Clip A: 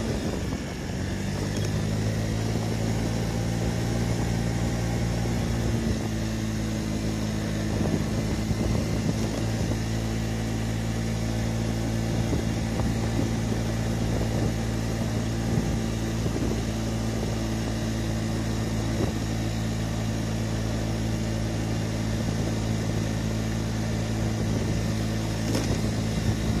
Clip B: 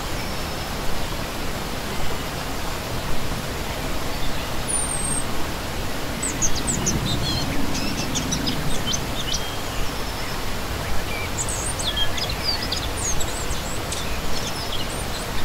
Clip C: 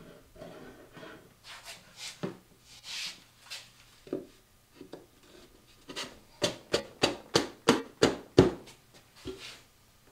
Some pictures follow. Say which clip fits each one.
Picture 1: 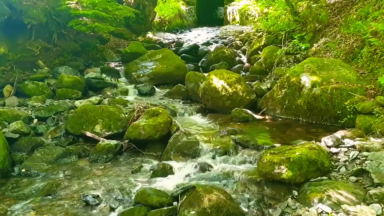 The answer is B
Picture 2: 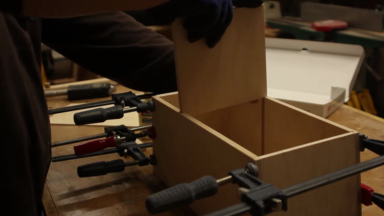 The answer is C